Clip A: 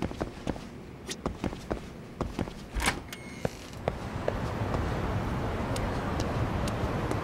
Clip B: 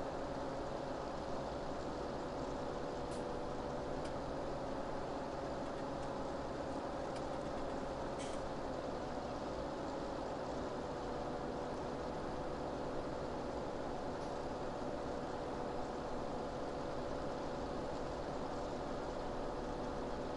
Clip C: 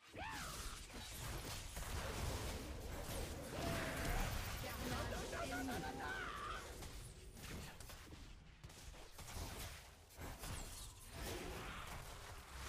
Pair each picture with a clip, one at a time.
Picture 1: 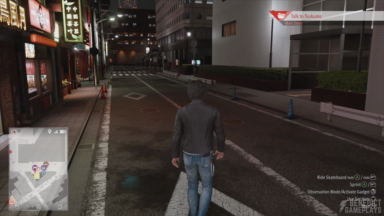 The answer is A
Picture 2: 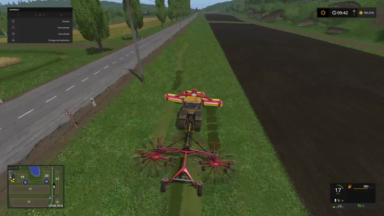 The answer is B